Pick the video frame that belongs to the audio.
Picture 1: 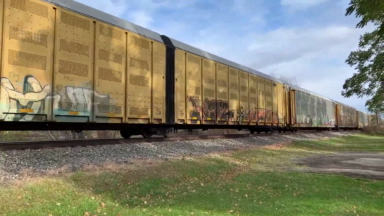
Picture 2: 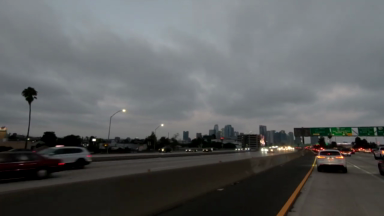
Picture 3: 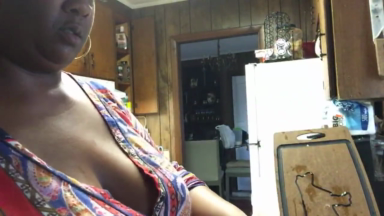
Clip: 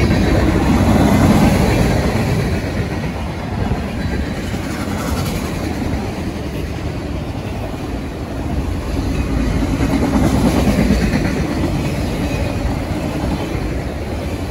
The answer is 1